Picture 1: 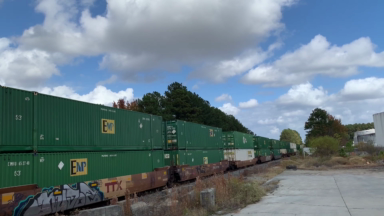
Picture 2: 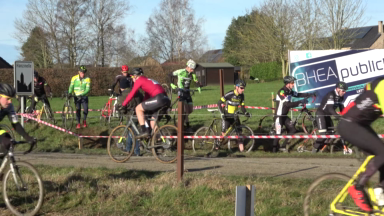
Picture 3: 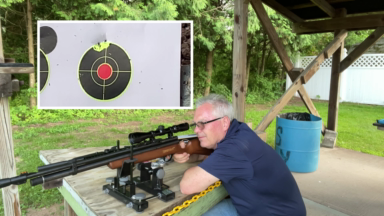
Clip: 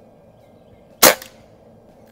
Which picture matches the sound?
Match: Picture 3